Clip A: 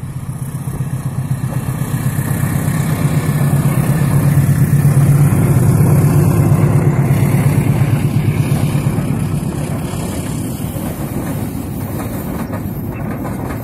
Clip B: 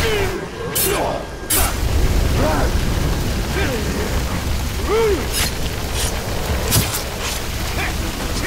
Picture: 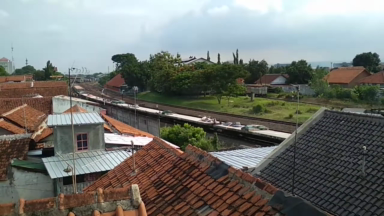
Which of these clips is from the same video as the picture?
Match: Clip A